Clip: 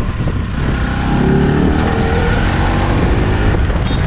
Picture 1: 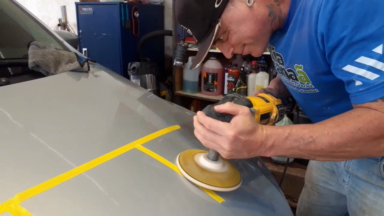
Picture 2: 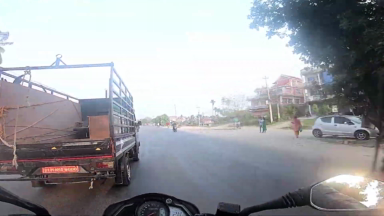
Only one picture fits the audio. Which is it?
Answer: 2